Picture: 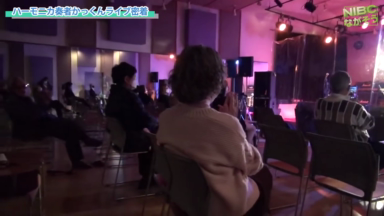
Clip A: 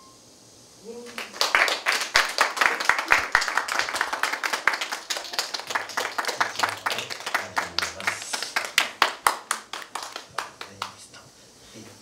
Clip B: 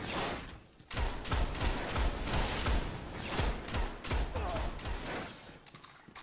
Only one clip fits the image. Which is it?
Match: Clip A